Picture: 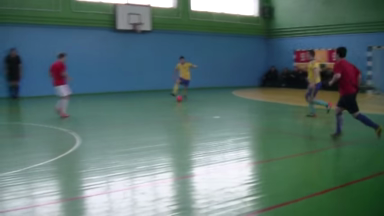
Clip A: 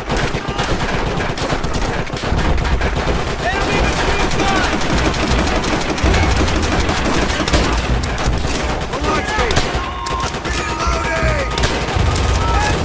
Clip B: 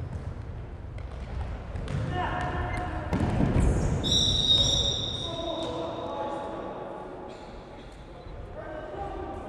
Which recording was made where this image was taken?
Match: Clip B